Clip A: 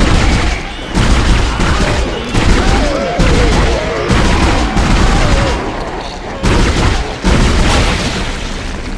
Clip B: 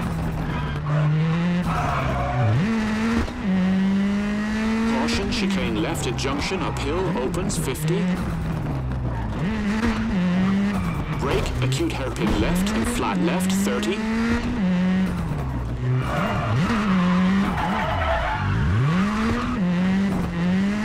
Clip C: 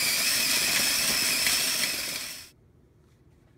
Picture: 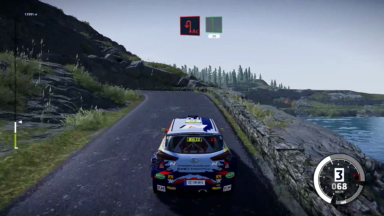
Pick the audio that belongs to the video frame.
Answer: B